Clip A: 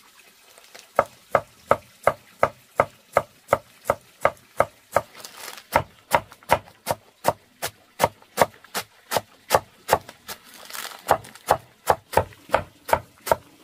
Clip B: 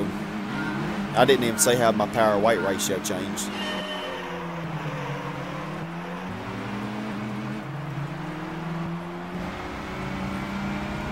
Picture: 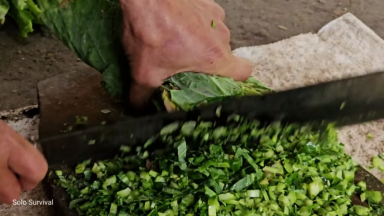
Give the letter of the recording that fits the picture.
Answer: A